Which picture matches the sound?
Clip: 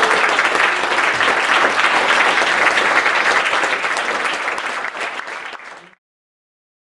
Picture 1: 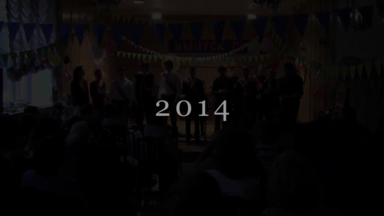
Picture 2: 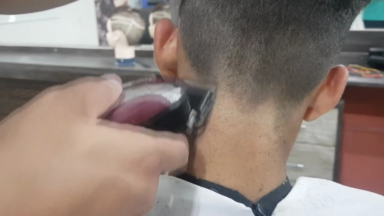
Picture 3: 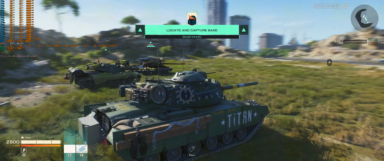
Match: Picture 1